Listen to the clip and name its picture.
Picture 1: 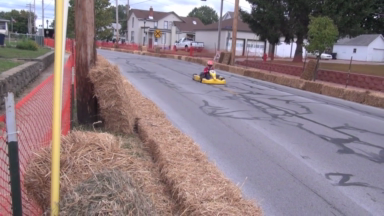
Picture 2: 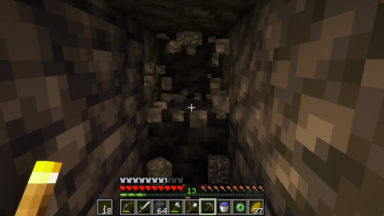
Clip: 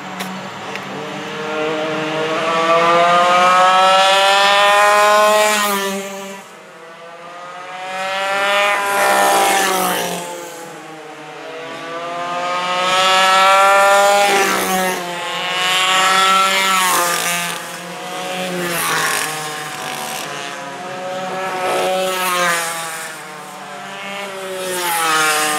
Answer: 1